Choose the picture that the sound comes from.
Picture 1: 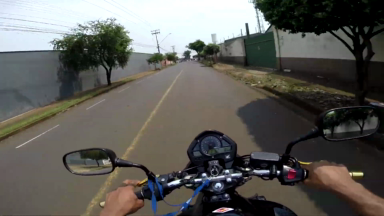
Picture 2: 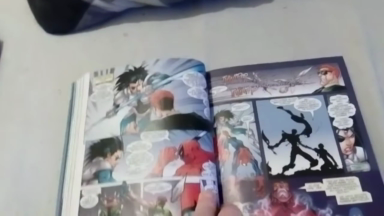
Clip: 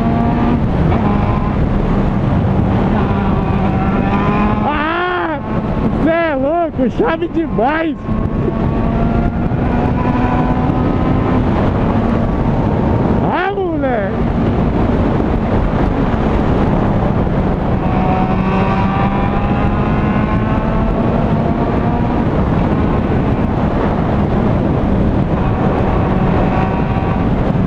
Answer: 1